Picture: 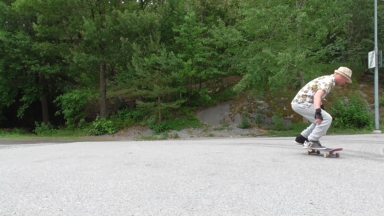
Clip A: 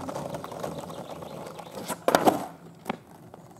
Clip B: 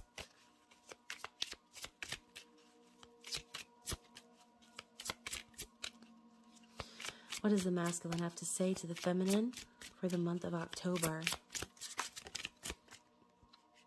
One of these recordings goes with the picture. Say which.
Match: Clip A